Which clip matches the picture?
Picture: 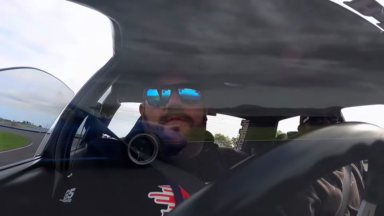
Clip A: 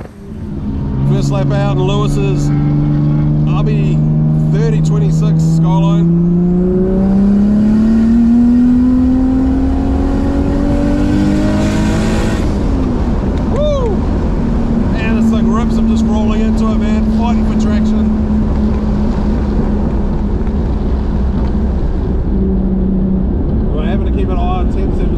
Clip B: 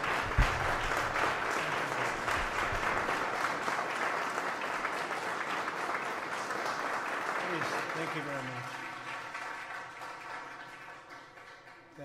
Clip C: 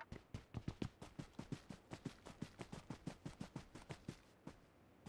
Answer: A